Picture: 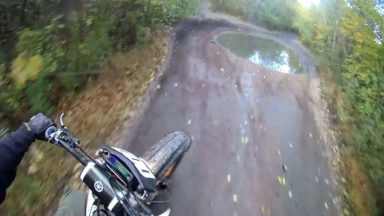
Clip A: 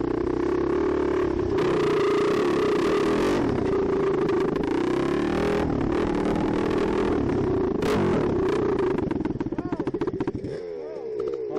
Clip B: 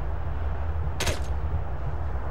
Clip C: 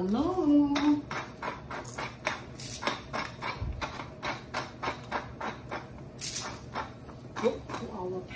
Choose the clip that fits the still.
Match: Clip A